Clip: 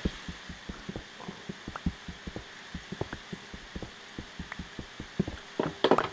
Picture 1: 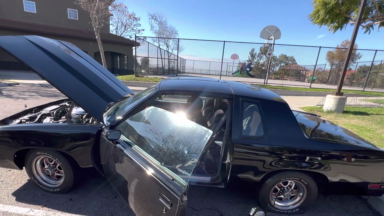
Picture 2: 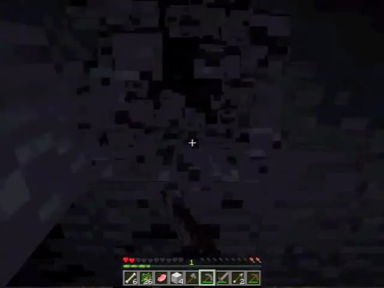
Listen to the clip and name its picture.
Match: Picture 2